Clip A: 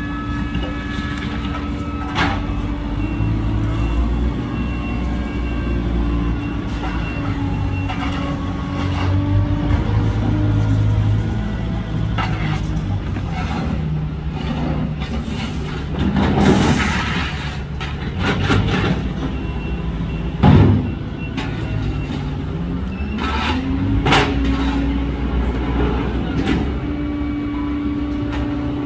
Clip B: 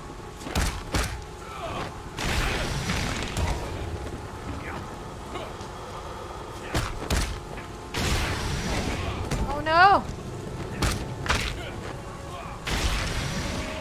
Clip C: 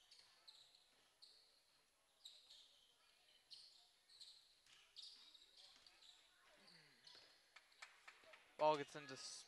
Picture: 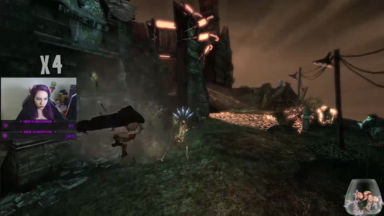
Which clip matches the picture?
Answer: B